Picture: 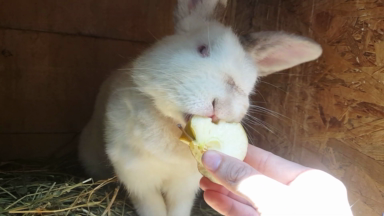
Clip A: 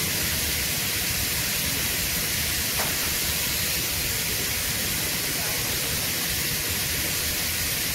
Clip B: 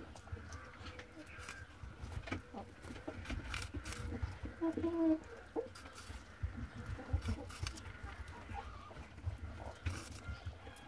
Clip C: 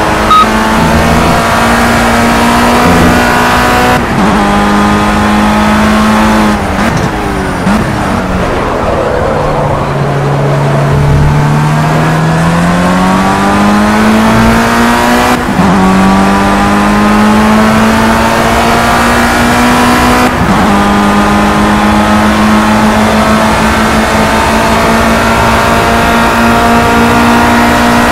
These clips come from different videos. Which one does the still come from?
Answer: B